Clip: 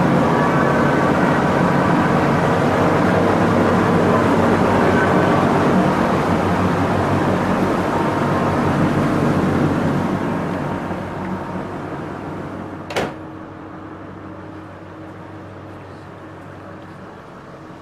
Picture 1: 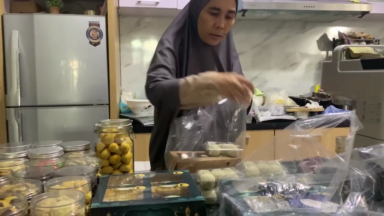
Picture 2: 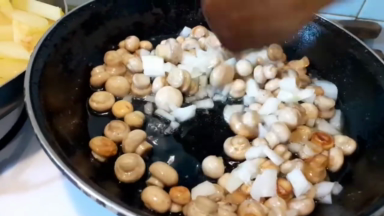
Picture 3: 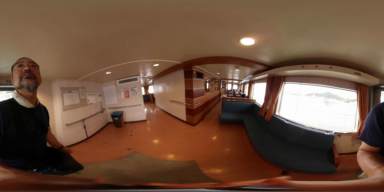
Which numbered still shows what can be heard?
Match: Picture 3